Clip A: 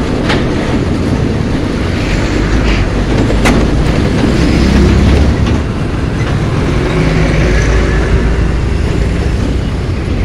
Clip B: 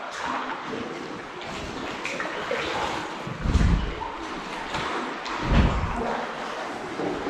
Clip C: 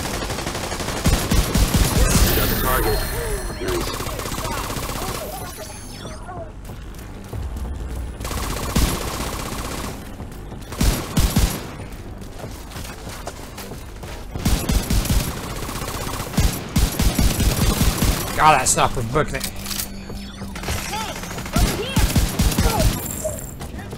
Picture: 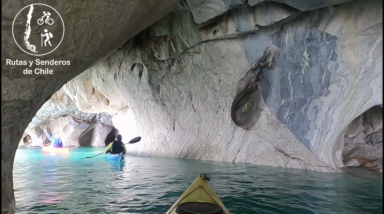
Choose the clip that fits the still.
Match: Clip B